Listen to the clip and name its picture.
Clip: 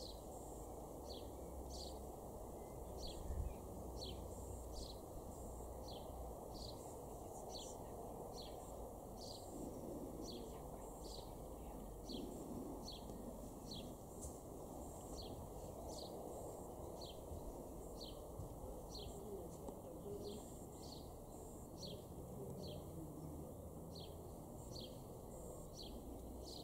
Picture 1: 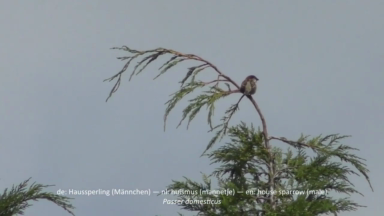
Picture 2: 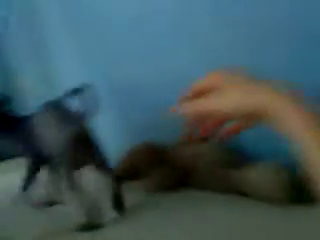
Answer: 1